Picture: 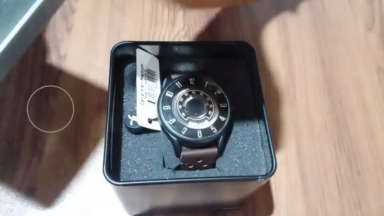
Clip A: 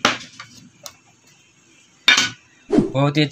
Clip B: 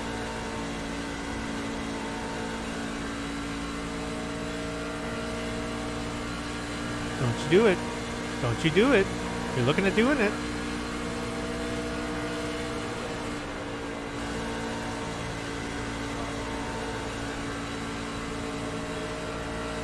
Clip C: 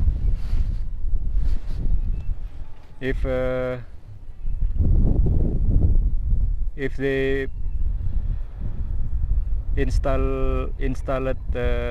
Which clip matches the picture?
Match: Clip A